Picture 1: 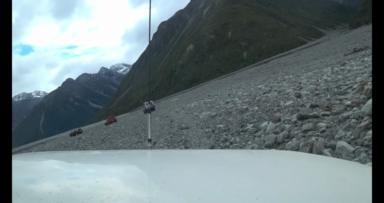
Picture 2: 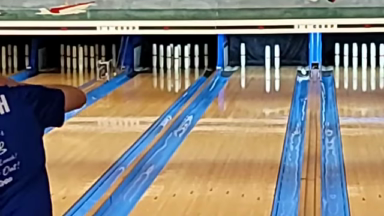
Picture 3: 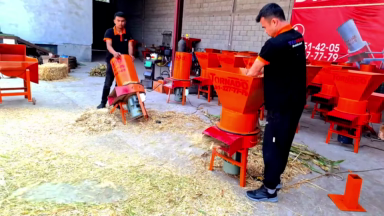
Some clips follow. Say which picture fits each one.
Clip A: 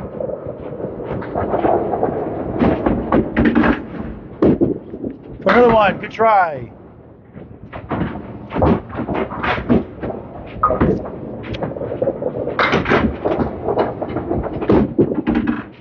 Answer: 2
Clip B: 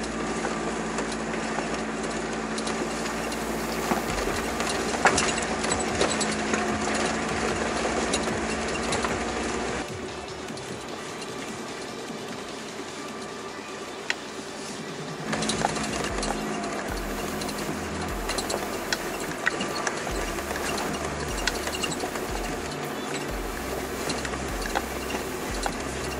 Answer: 1